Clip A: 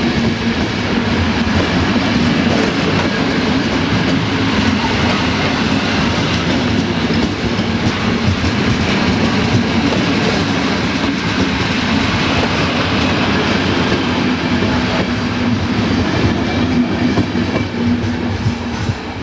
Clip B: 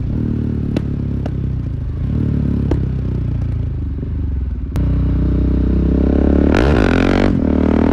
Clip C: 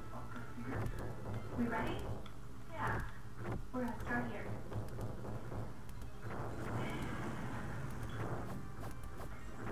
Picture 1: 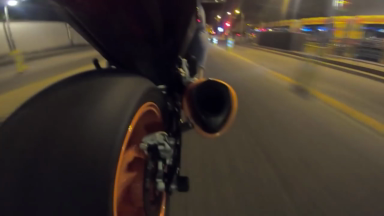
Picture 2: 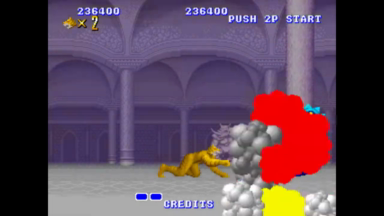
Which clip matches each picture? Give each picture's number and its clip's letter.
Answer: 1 B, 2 C